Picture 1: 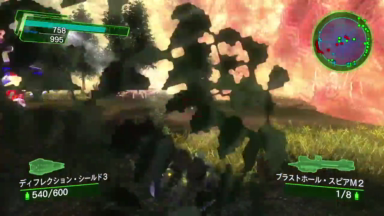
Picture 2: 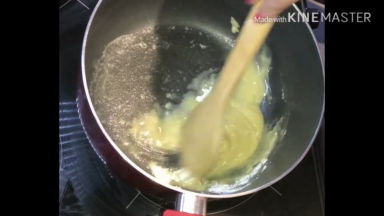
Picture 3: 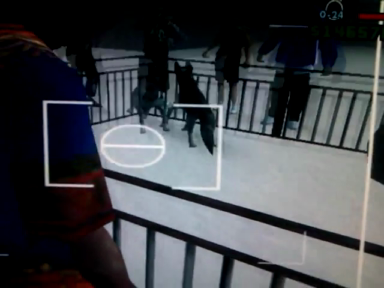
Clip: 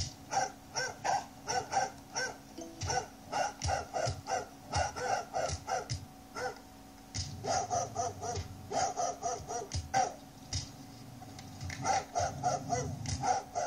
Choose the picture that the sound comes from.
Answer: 3